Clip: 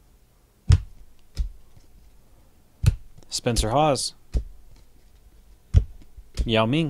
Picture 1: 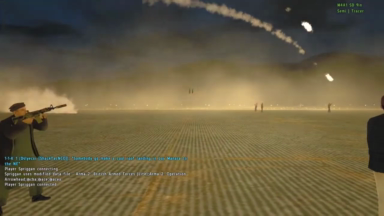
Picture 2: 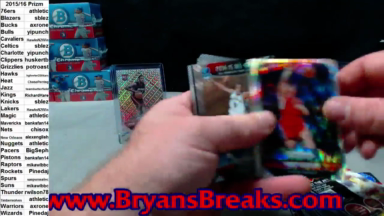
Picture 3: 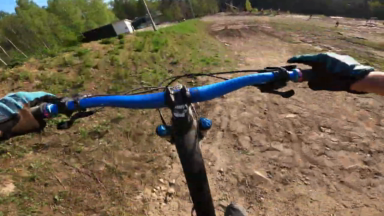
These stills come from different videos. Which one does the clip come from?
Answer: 2